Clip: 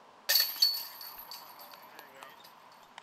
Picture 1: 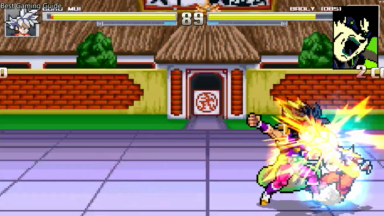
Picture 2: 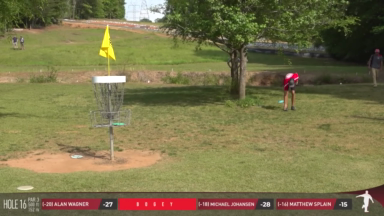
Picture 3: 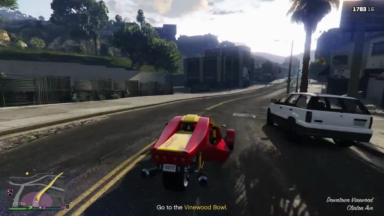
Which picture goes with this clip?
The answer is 2